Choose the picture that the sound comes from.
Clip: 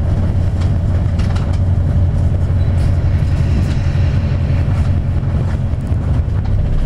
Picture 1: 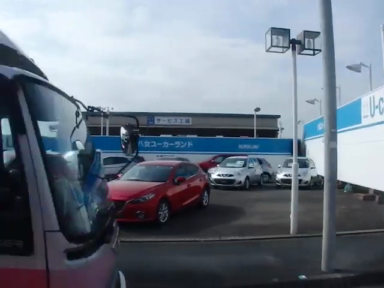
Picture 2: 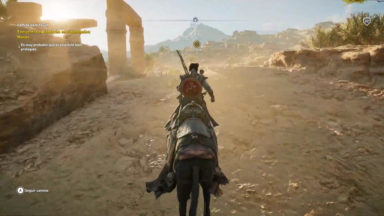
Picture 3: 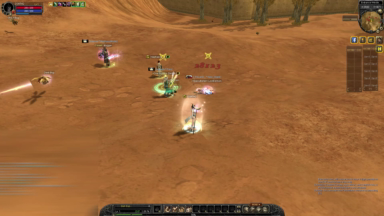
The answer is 1